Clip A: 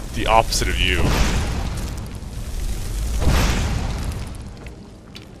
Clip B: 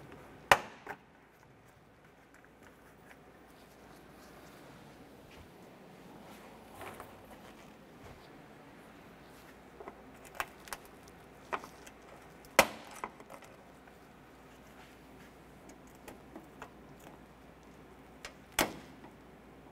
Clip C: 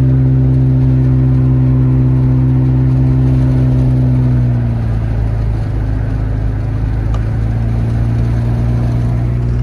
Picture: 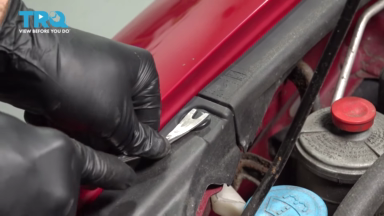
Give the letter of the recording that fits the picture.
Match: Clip B